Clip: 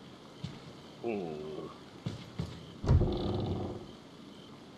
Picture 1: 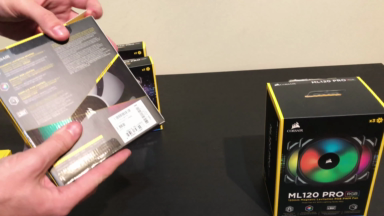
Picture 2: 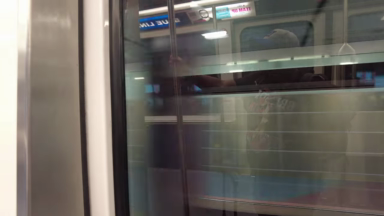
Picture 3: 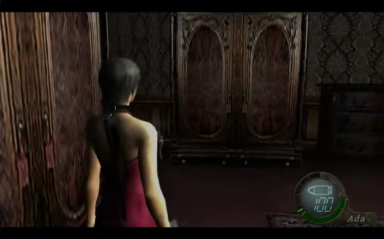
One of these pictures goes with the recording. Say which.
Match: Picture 3